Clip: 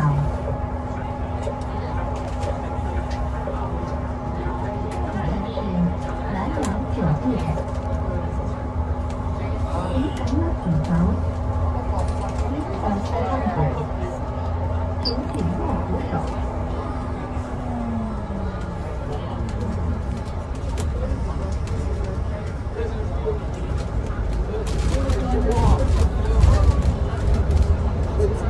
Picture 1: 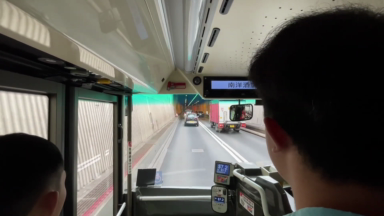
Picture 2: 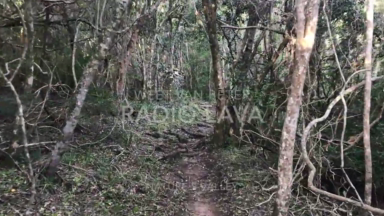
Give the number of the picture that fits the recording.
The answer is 1